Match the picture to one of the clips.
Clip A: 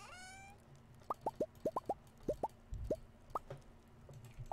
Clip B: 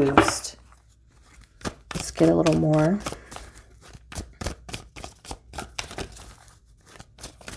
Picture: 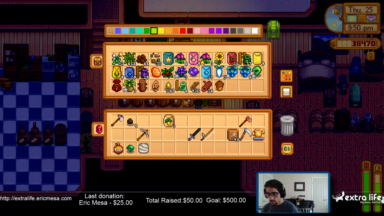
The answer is A